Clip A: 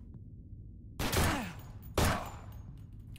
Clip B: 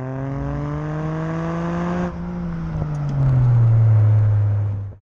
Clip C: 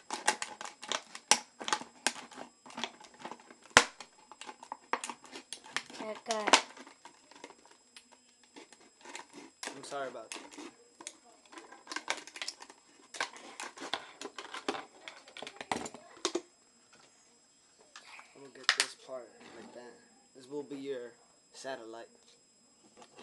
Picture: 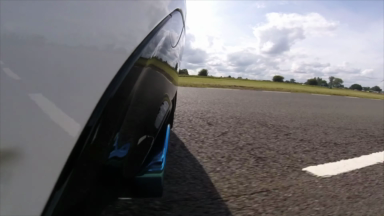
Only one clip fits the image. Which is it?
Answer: B